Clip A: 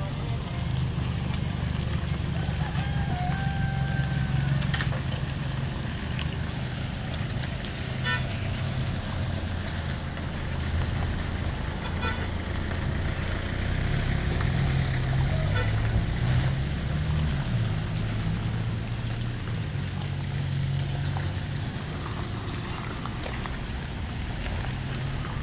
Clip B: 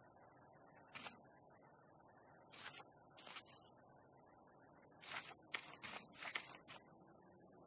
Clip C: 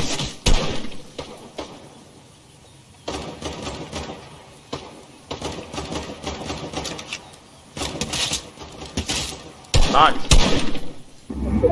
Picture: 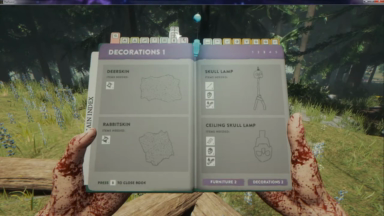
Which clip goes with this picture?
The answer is B